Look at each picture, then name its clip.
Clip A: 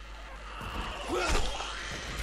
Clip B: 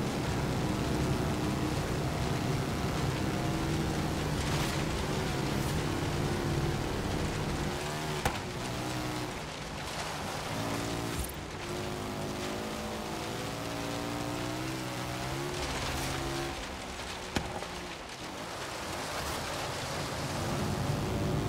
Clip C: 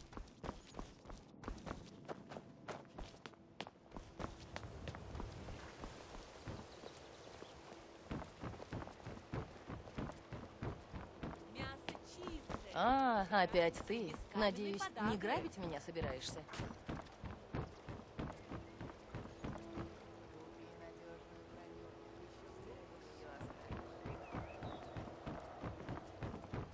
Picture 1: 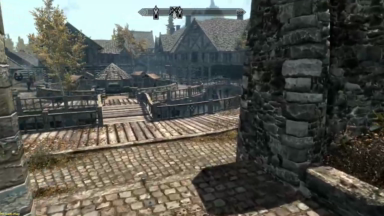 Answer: C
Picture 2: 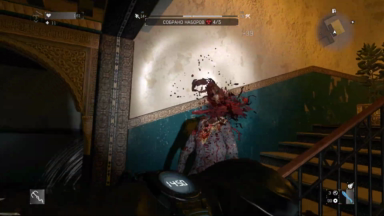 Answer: A